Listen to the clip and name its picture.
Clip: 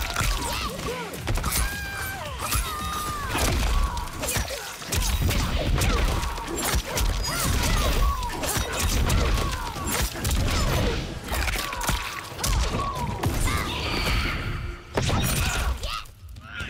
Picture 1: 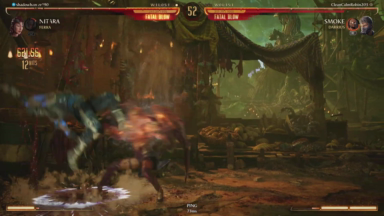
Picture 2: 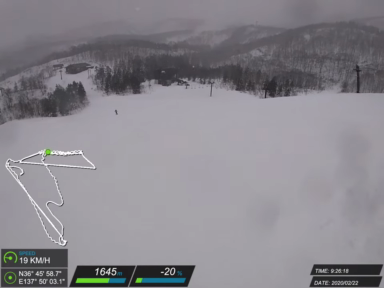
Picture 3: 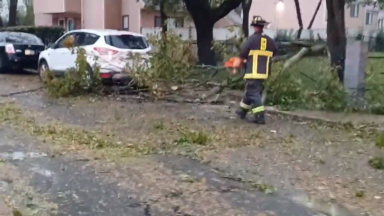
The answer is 1